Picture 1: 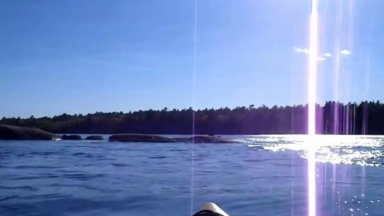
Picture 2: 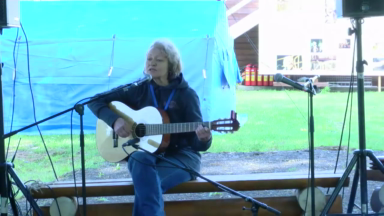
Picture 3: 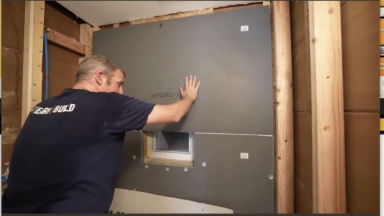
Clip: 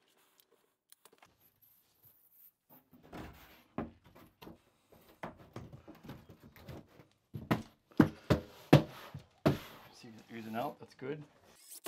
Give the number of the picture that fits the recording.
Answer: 3